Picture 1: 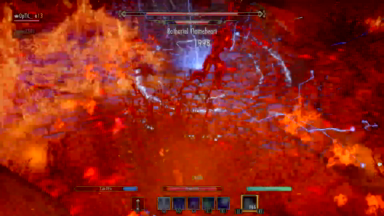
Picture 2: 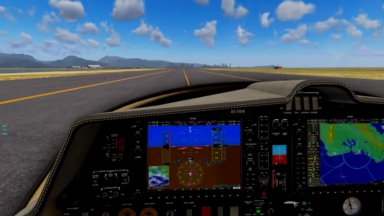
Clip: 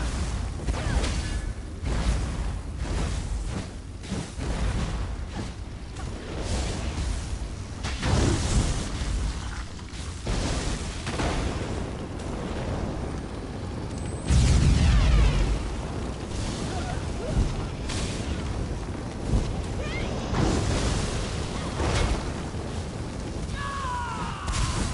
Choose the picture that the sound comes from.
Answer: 1